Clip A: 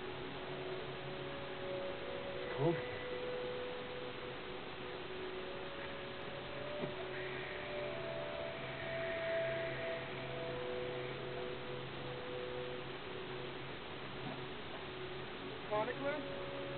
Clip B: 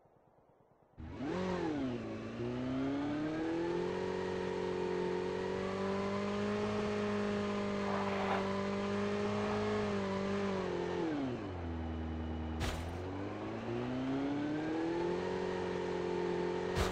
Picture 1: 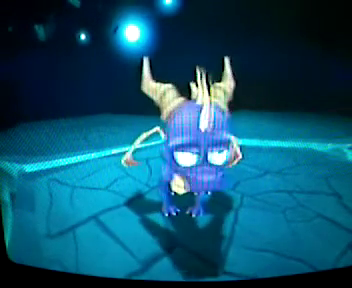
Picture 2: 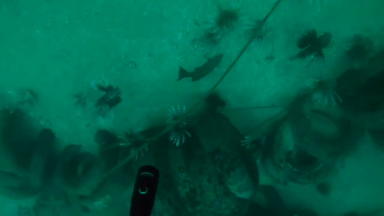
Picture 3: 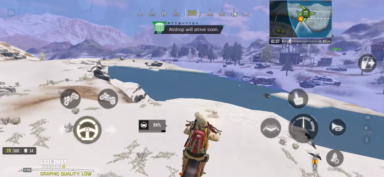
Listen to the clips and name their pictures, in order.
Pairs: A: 1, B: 3